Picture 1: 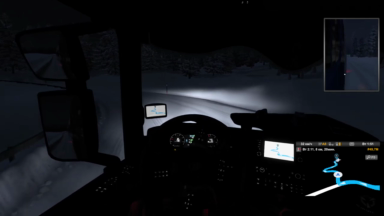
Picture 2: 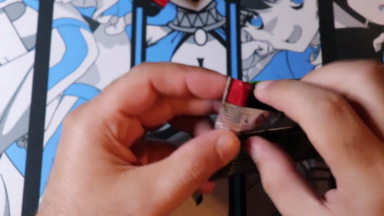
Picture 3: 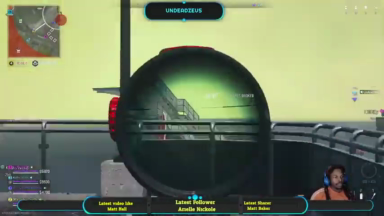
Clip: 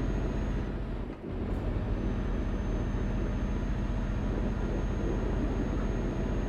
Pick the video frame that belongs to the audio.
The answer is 1